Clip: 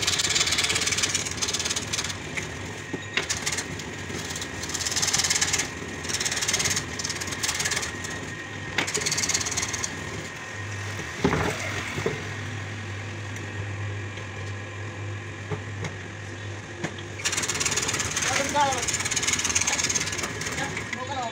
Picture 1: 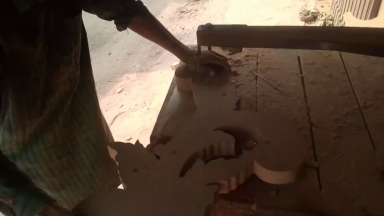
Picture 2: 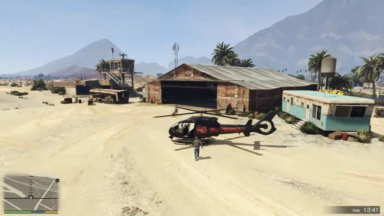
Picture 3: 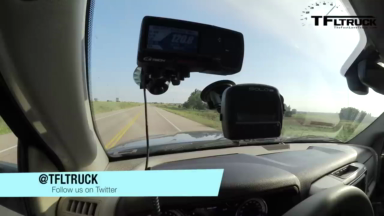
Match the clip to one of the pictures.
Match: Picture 1